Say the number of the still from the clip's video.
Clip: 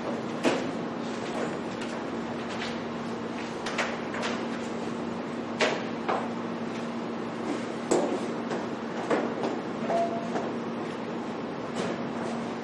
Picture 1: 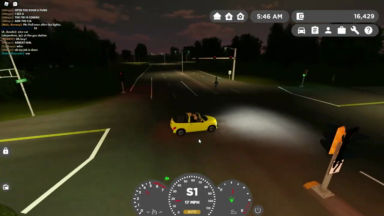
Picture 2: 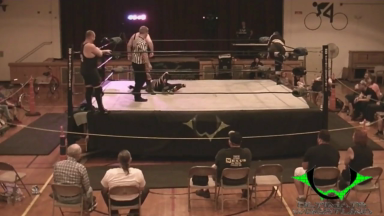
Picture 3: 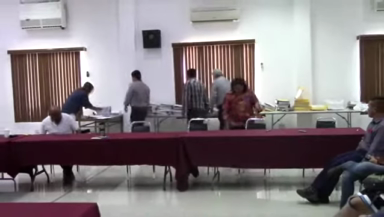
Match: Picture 3